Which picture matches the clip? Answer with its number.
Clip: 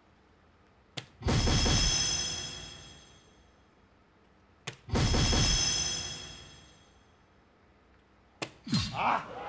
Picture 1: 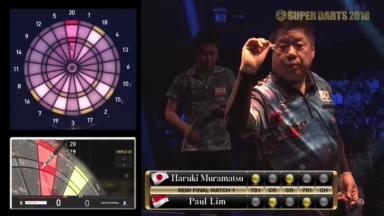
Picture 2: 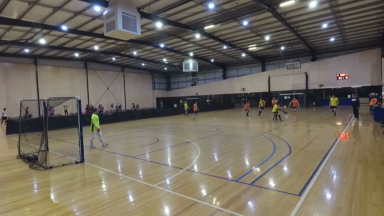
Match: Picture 1